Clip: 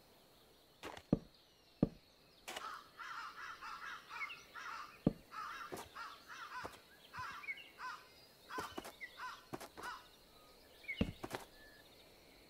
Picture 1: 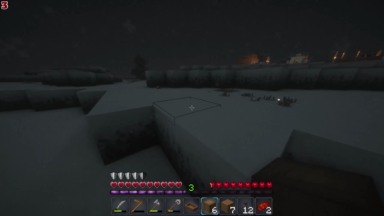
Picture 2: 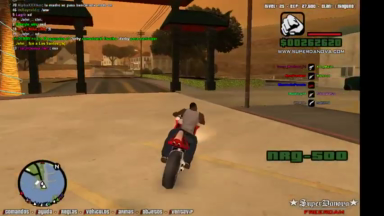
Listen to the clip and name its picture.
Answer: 1